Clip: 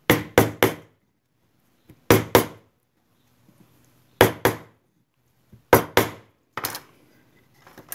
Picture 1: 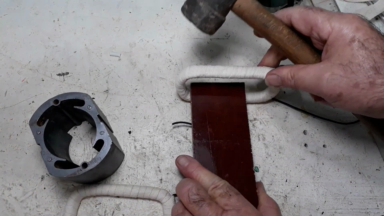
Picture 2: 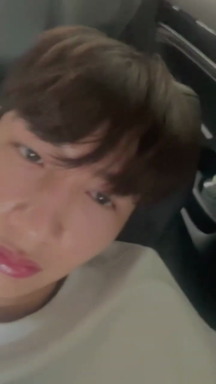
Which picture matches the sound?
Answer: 1